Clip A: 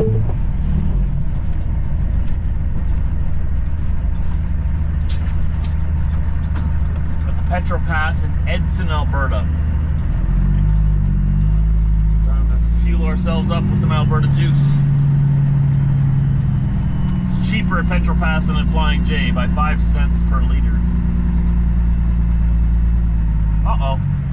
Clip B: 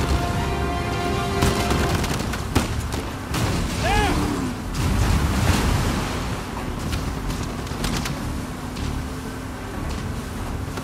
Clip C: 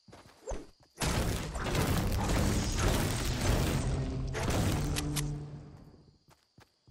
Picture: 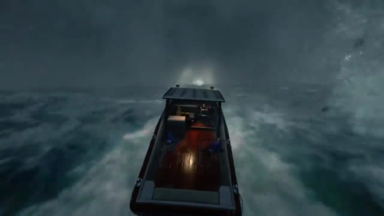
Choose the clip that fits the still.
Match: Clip B